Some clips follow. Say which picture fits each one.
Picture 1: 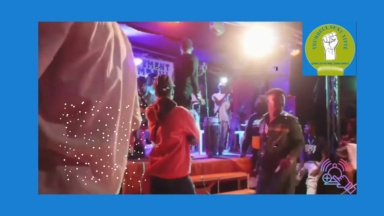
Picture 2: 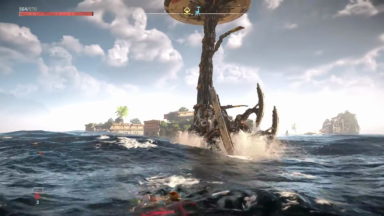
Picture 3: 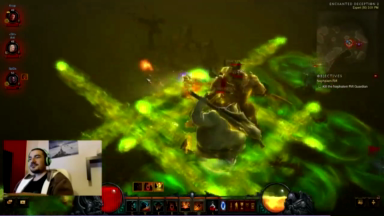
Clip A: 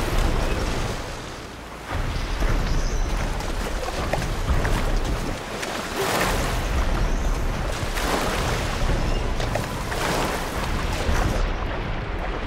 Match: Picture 2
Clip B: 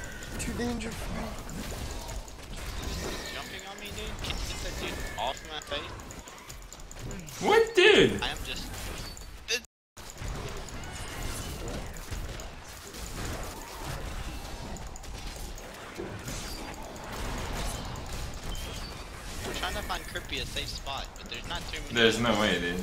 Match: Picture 3